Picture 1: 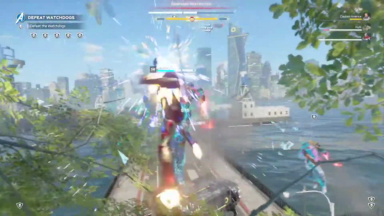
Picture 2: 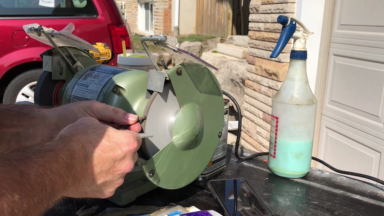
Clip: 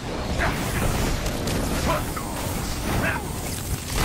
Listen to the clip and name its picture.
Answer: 1